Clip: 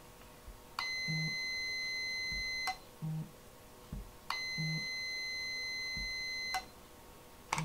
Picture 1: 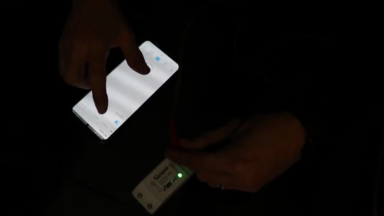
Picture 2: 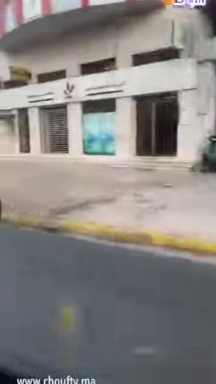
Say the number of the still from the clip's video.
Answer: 1